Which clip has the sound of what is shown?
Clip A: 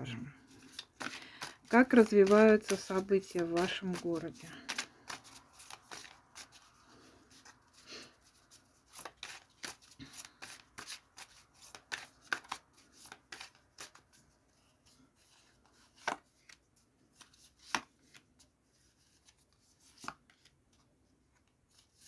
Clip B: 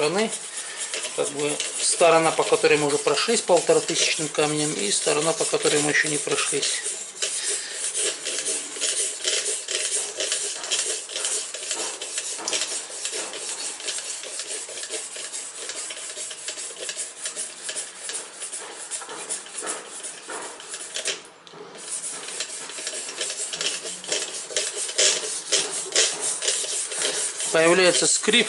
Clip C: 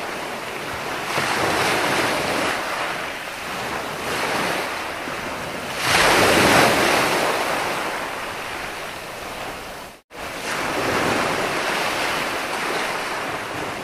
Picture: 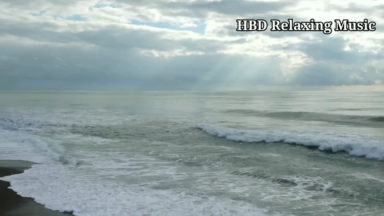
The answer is C